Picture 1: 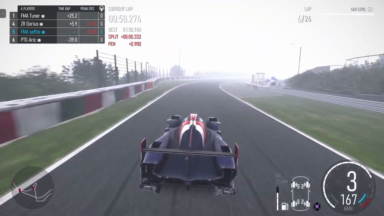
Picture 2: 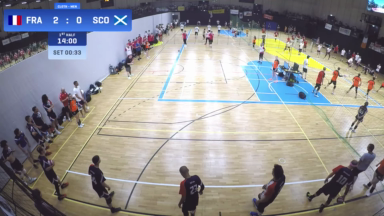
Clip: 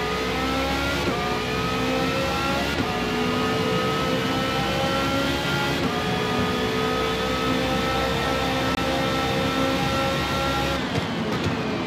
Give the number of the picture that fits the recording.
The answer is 1